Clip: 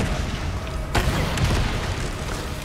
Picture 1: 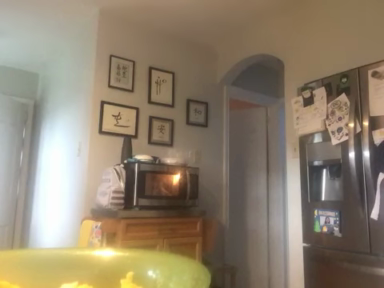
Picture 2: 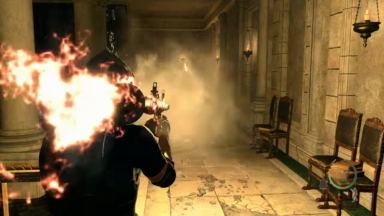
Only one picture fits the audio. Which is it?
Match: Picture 2